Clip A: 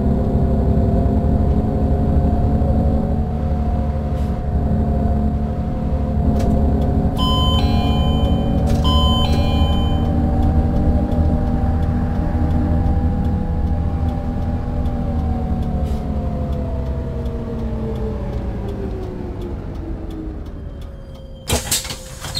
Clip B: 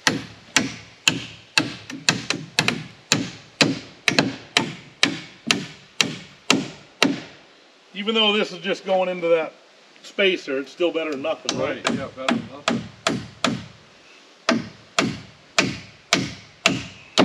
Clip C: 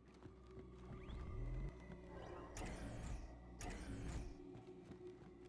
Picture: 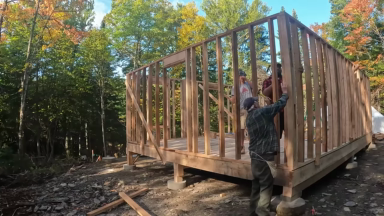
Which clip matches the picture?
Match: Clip B